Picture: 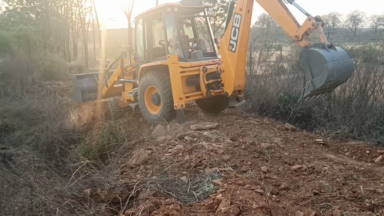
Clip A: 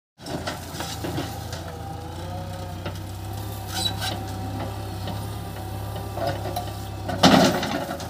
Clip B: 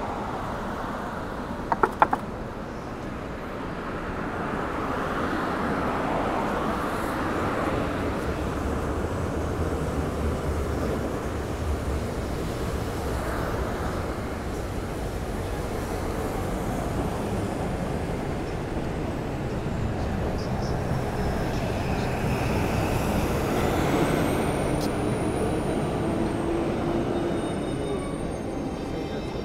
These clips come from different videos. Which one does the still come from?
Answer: A